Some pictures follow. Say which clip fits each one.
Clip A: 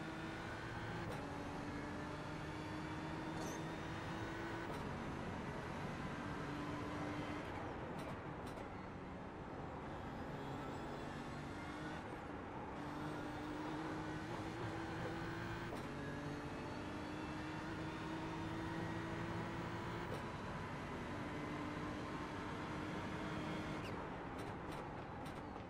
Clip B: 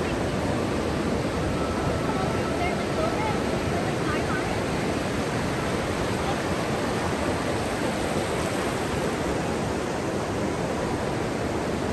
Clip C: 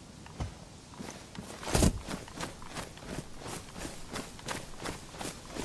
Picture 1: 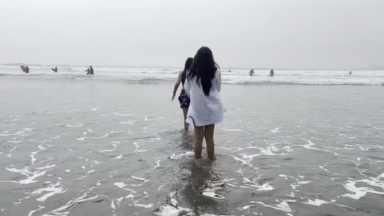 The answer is B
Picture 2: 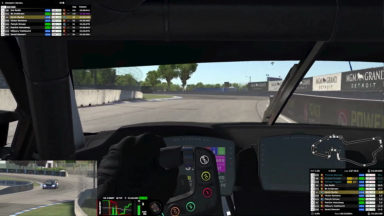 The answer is A